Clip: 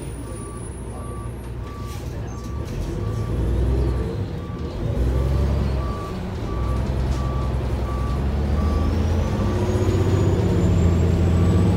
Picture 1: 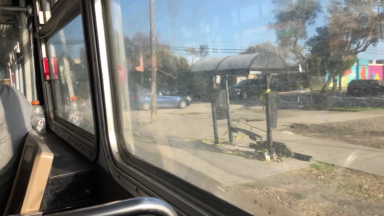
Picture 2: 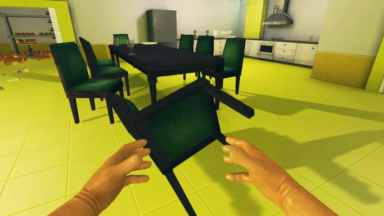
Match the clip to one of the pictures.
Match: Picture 1